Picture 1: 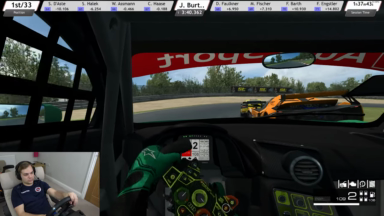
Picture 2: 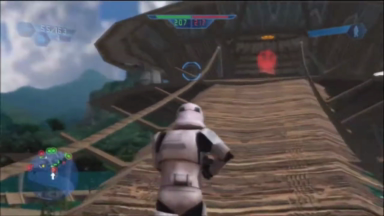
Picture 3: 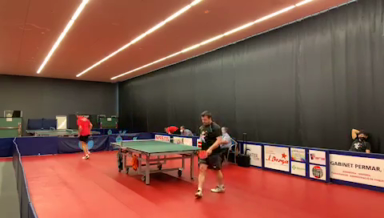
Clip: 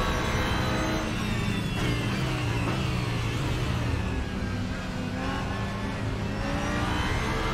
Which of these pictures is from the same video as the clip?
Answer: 1